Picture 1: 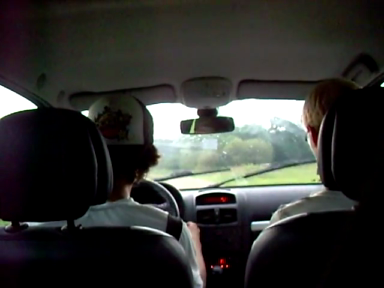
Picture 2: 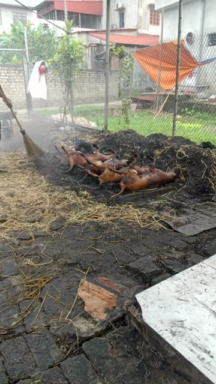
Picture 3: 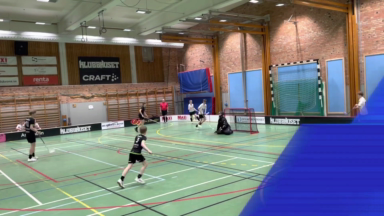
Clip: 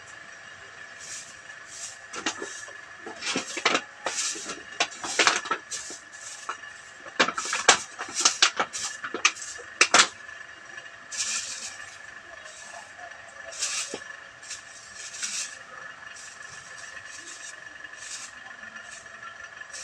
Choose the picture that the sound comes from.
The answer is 2